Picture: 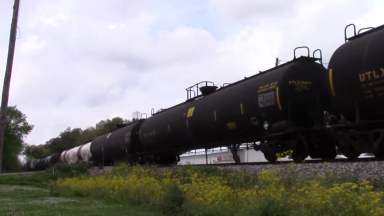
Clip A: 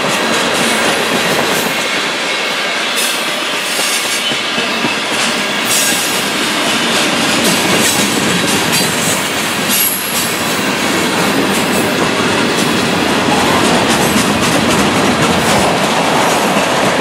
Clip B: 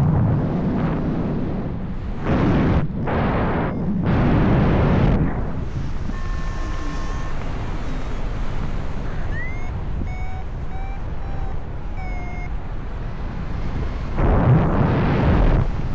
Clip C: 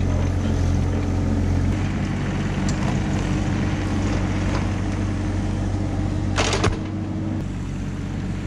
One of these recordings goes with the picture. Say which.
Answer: A